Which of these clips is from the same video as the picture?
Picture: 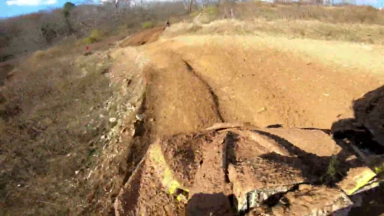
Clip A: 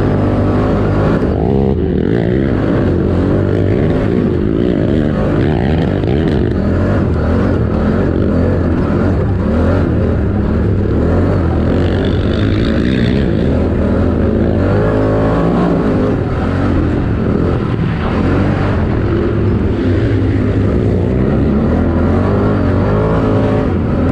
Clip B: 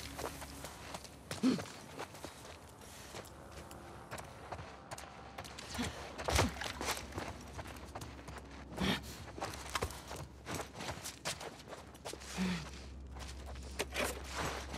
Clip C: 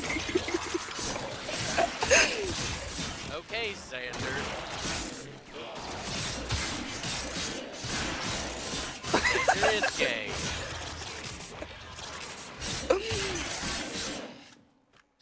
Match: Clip A